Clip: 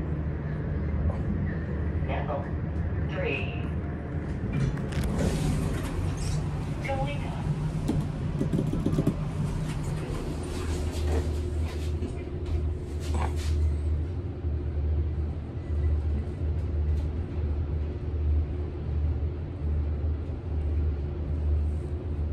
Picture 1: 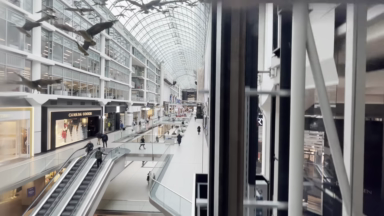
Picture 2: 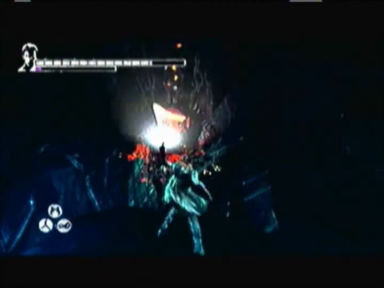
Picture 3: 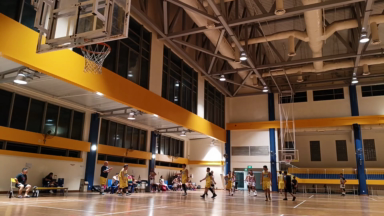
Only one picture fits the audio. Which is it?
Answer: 1